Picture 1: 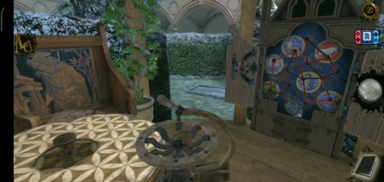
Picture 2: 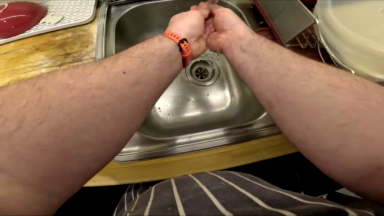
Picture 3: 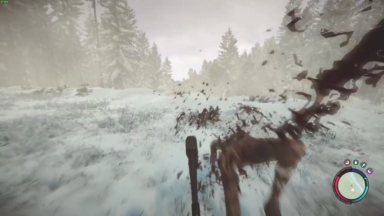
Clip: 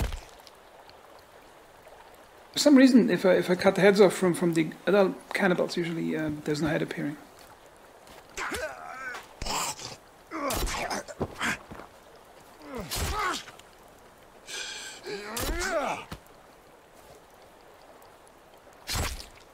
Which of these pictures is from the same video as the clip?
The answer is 3